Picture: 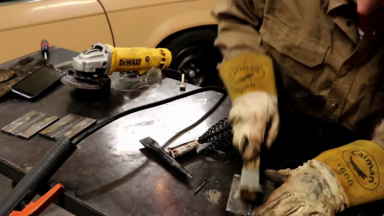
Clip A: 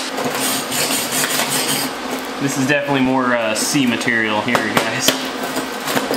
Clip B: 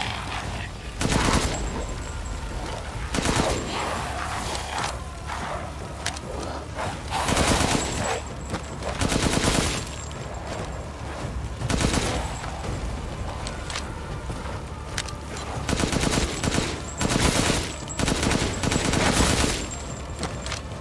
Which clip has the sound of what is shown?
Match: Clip A